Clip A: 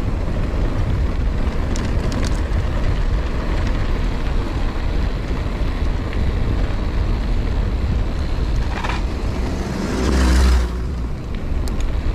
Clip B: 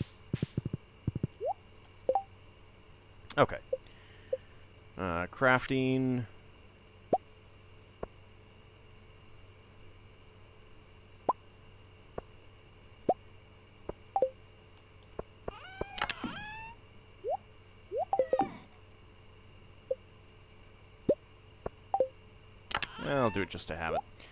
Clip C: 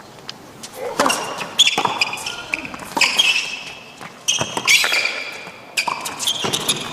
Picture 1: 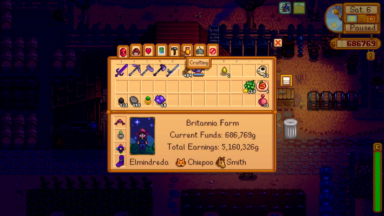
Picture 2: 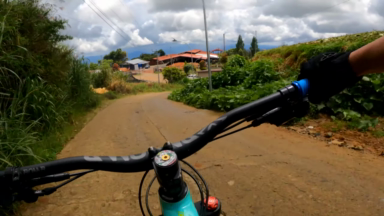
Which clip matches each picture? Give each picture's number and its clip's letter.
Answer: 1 B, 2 A